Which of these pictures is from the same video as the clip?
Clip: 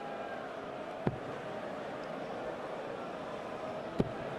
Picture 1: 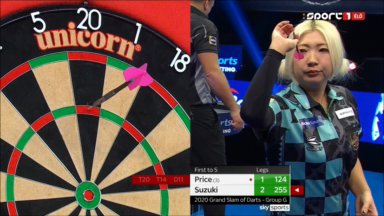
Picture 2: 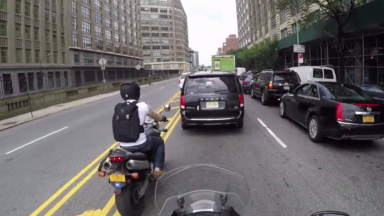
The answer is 1